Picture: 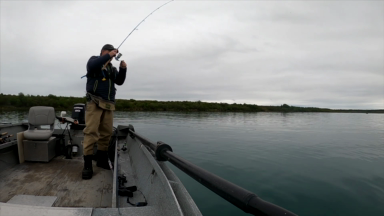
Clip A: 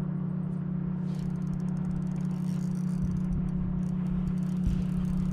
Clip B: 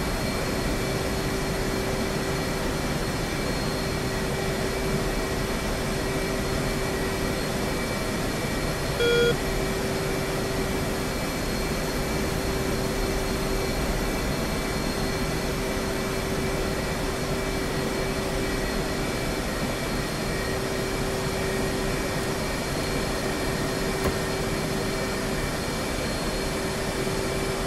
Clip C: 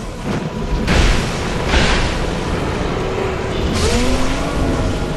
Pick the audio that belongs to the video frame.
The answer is A